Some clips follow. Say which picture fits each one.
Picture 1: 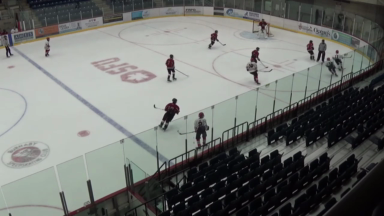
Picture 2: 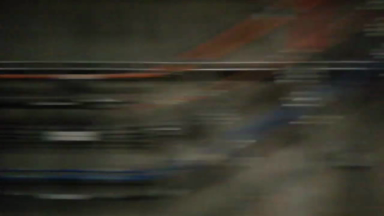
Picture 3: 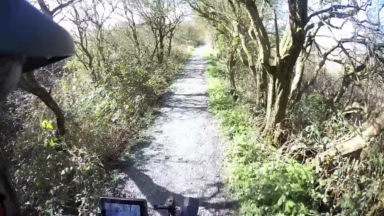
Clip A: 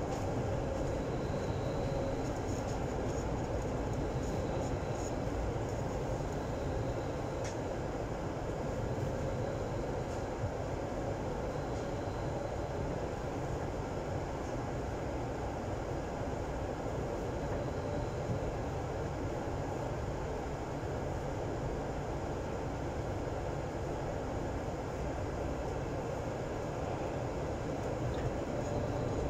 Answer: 2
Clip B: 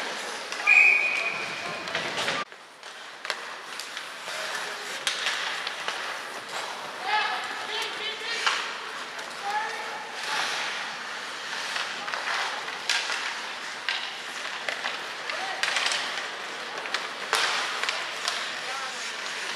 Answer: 1